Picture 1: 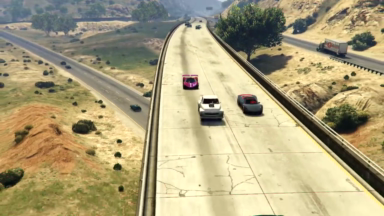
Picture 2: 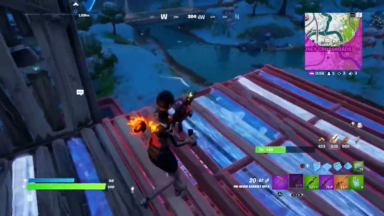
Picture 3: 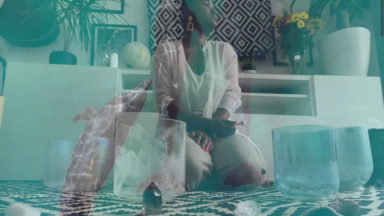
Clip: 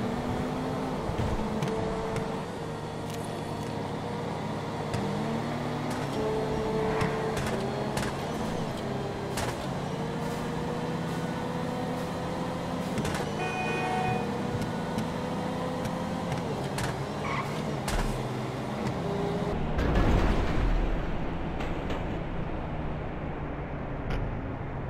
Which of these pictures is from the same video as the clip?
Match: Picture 1